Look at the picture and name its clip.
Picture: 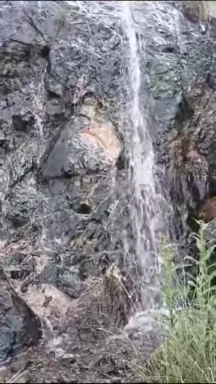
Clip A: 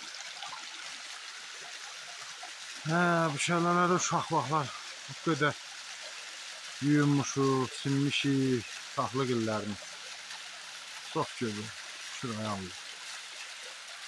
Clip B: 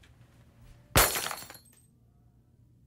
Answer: A